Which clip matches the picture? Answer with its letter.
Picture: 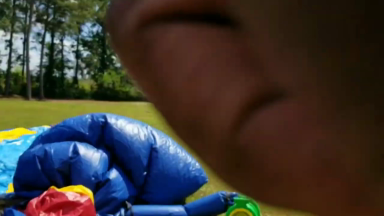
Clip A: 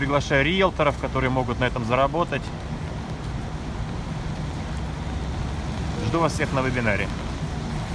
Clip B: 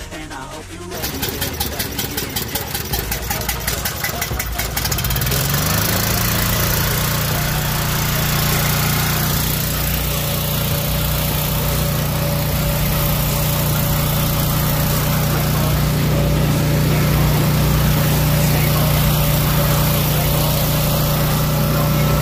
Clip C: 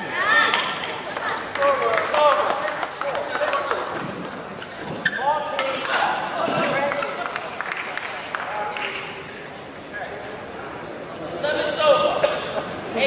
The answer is B